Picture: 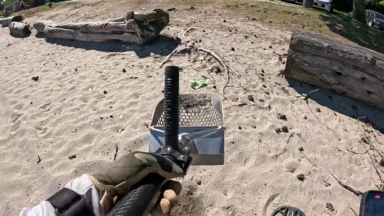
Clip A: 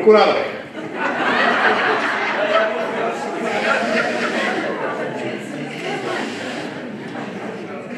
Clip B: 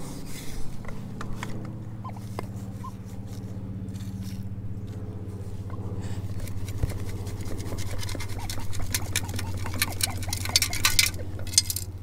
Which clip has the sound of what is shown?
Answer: B